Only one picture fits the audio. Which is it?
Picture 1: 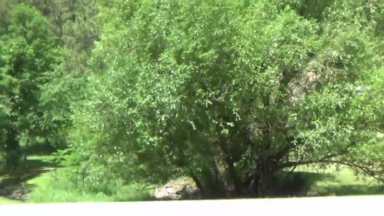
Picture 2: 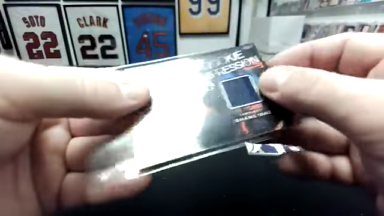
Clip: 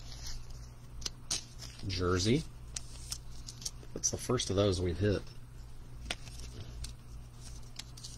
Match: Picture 2